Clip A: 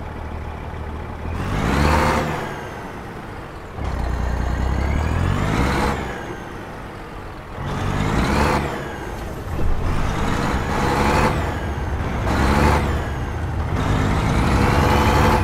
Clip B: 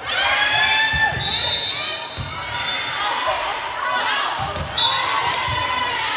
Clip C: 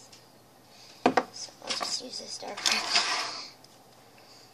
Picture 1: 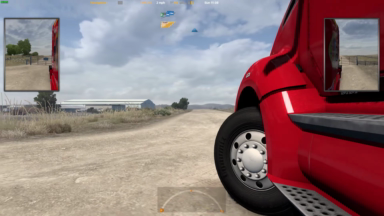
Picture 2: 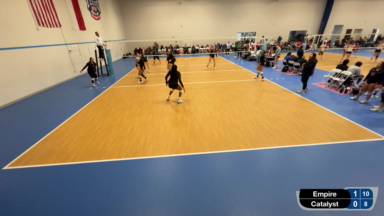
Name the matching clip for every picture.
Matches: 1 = A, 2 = B